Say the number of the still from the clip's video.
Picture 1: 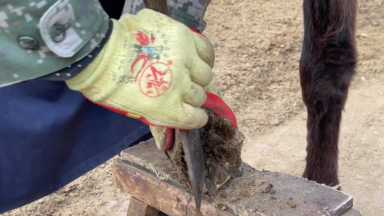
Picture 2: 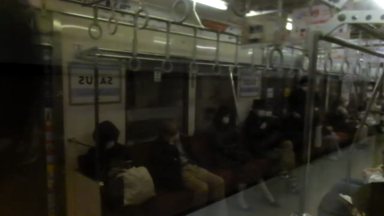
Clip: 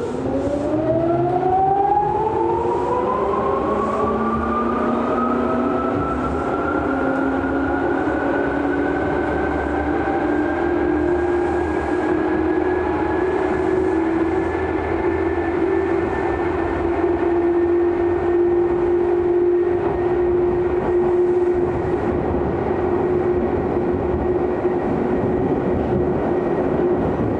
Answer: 2